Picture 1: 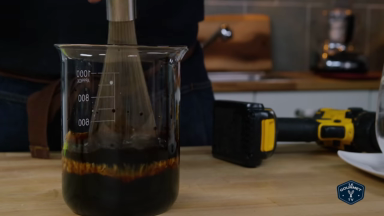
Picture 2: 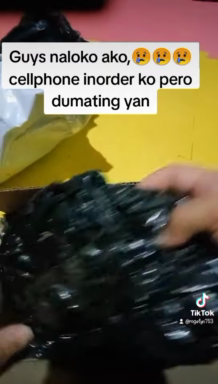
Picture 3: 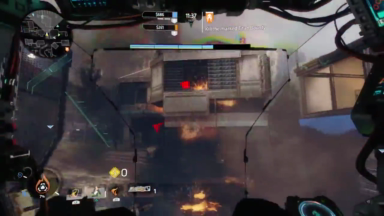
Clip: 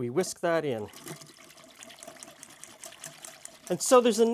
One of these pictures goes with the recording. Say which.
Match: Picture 1